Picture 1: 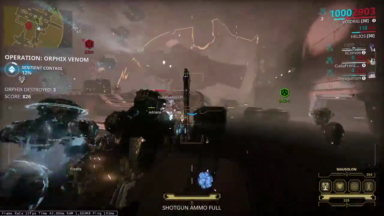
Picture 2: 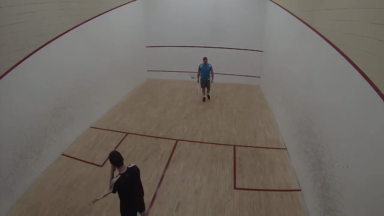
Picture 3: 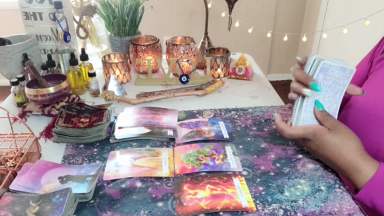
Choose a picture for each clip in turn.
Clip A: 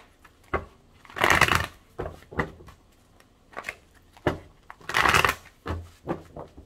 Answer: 3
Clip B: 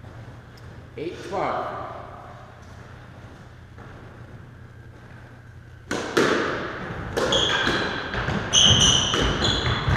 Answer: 2